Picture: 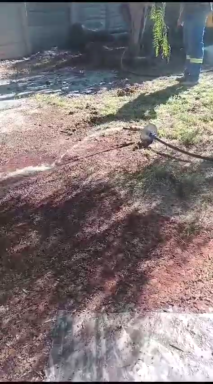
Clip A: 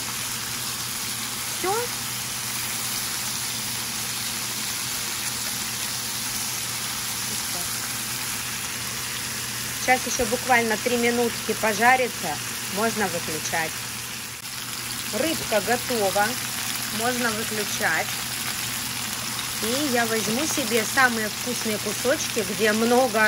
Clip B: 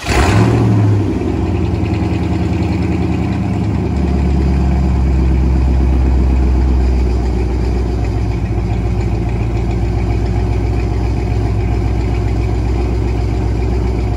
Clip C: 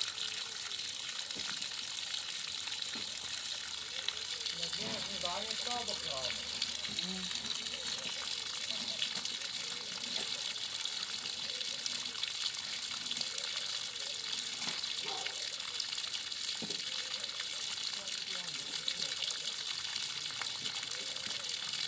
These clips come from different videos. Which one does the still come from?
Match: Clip C